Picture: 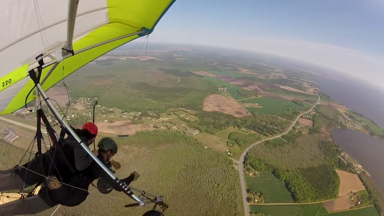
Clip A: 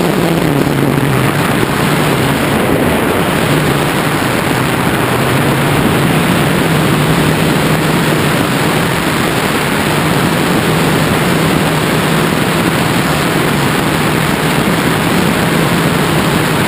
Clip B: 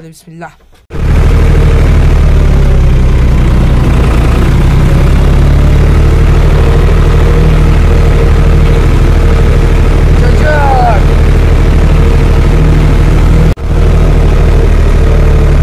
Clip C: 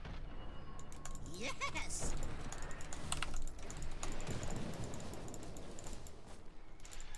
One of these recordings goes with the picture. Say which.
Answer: A